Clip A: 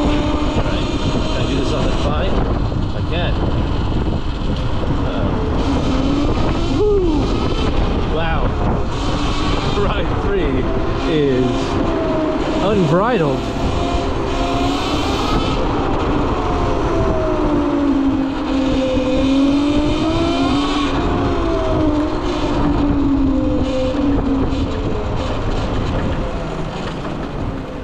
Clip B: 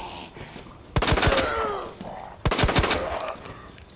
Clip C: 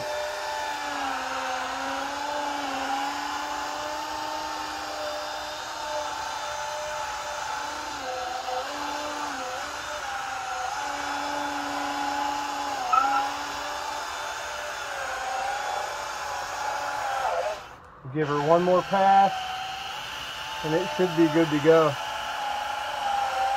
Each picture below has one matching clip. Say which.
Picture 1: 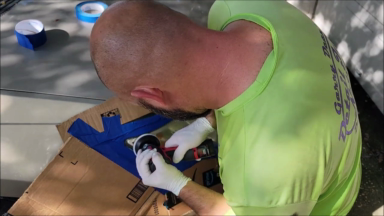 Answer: C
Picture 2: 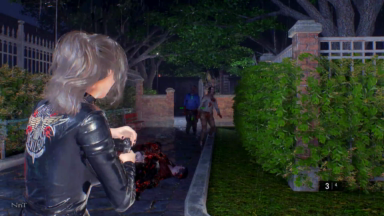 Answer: B